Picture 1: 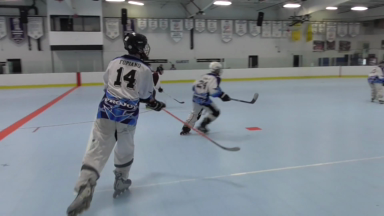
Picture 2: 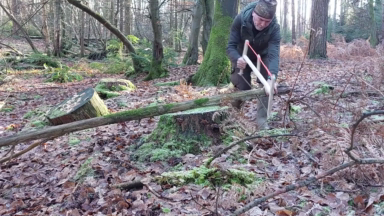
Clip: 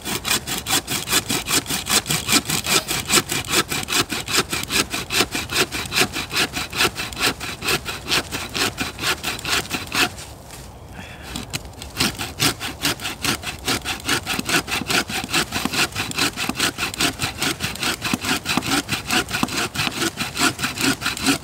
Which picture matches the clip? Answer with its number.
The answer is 2